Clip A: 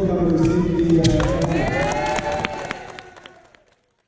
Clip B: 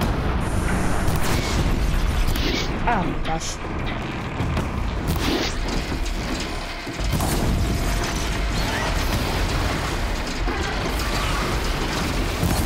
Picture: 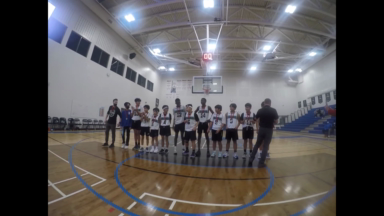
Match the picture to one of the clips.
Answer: A